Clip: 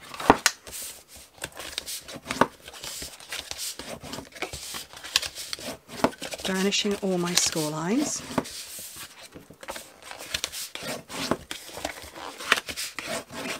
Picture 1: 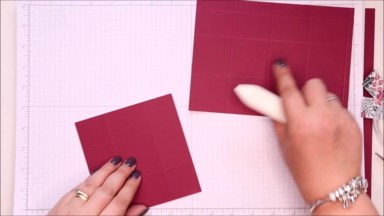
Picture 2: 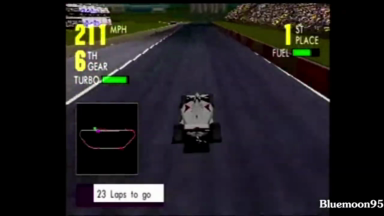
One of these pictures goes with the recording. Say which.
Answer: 1